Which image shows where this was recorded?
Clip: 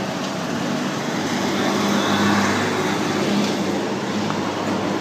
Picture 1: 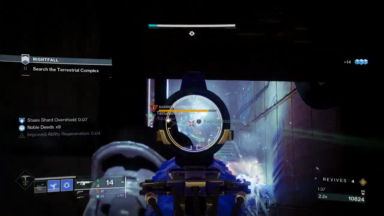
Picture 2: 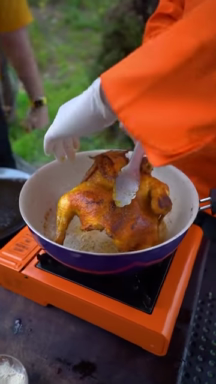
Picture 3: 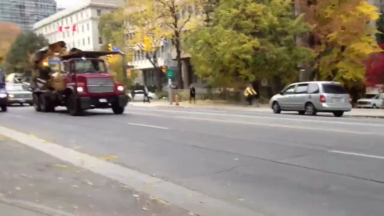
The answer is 3